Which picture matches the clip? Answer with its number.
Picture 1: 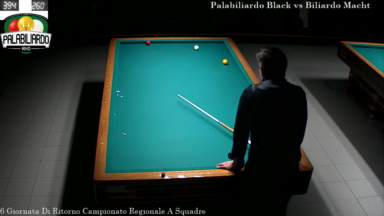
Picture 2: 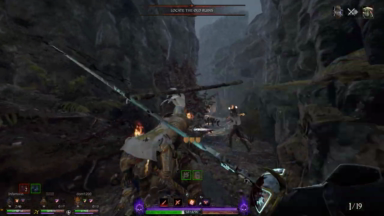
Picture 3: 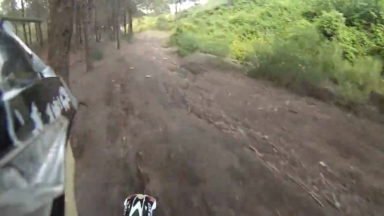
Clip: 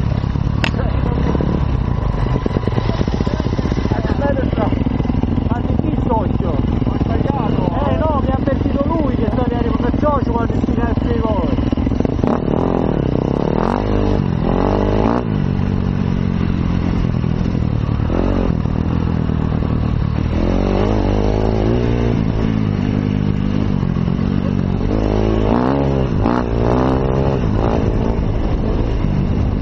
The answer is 3